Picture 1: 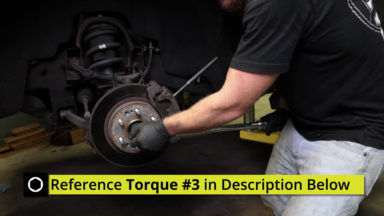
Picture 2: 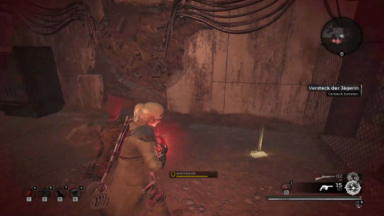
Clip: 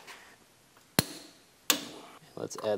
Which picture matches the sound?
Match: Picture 1